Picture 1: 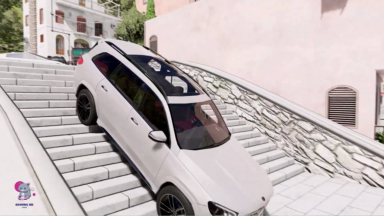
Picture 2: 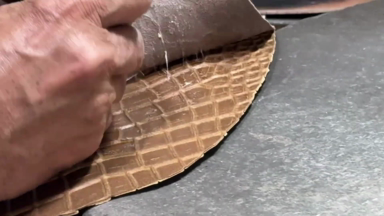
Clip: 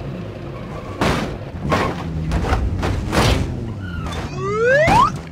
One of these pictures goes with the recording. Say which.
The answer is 1